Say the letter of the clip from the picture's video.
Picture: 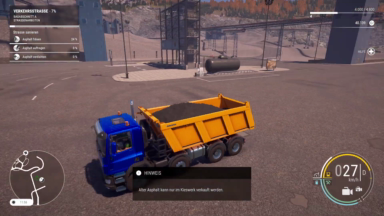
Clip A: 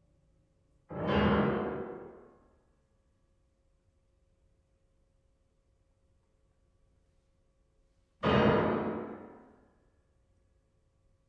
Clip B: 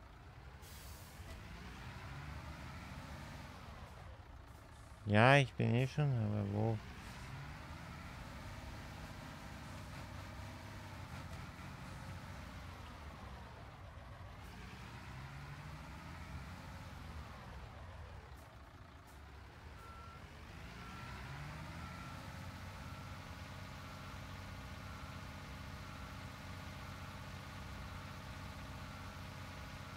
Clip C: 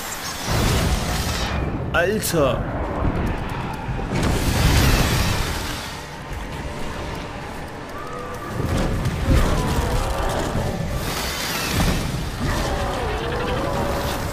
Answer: B